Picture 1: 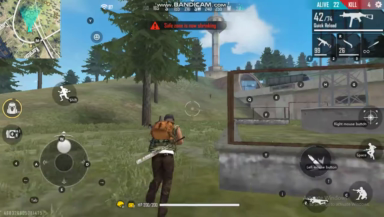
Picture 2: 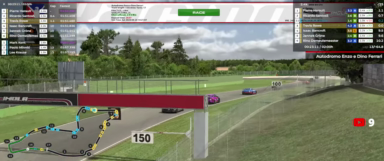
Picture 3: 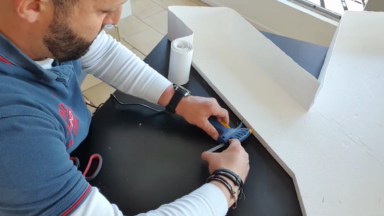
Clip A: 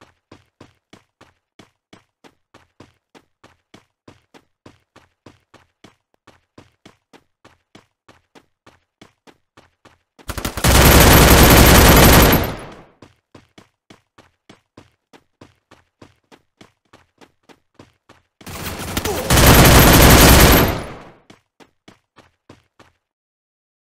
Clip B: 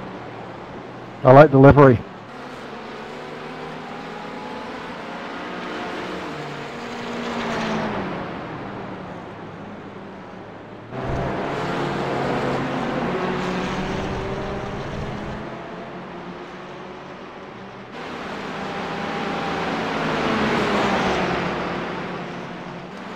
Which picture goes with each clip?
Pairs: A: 1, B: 2